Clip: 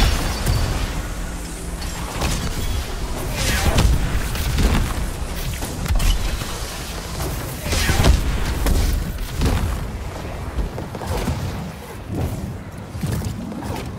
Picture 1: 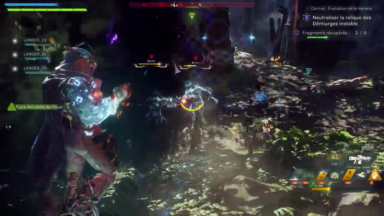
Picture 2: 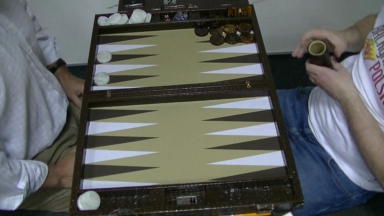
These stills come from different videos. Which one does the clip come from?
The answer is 1